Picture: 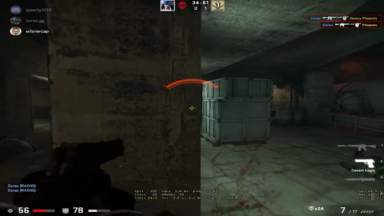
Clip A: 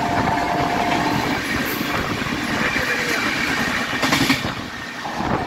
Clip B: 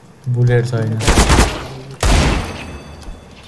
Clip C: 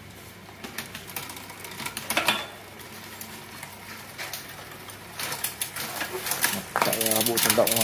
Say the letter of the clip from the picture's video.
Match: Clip B